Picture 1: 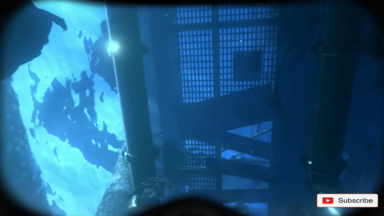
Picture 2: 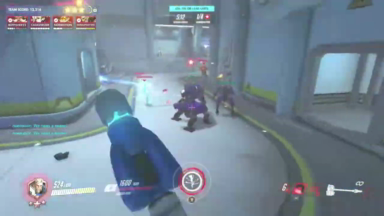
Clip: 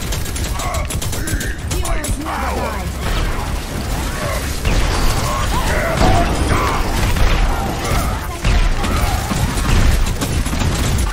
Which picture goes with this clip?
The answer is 2